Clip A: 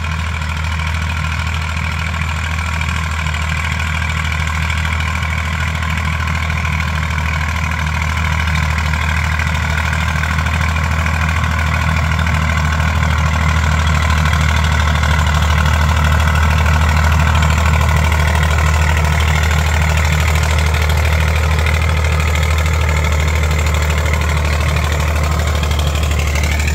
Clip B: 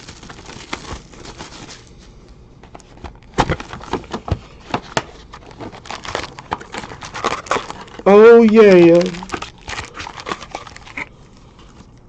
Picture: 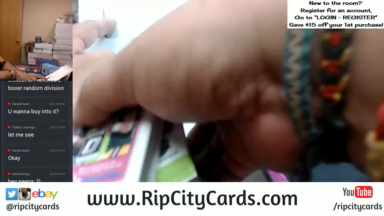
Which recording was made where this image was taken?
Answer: B